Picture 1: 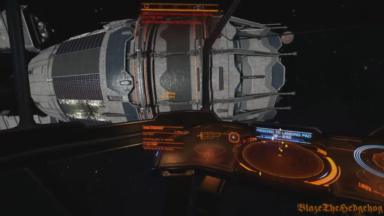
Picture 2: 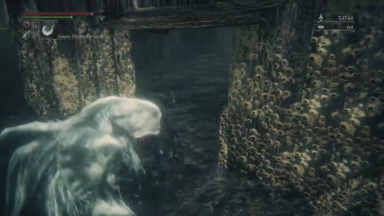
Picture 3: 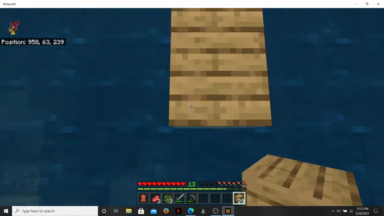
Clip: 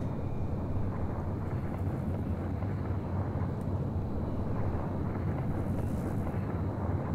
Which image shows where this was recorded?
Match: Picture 1